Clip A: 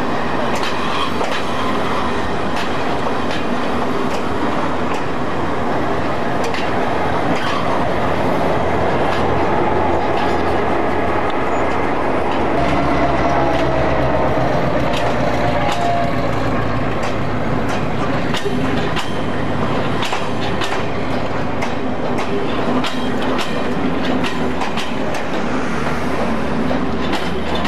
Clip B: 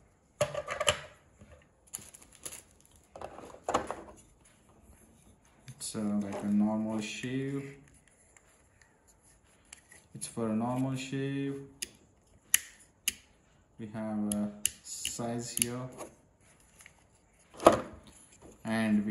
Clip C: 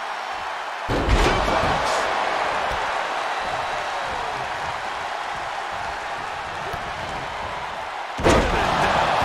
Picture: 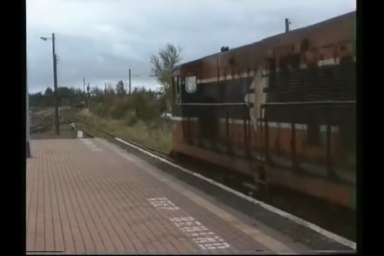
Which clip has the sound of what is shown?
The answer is A